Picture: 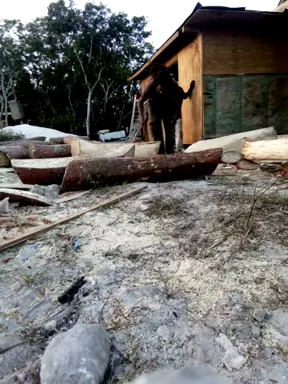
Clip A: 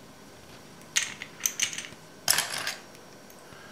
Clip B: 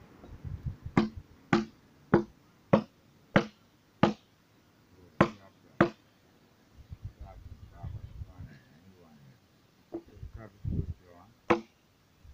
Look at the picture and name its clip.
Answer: B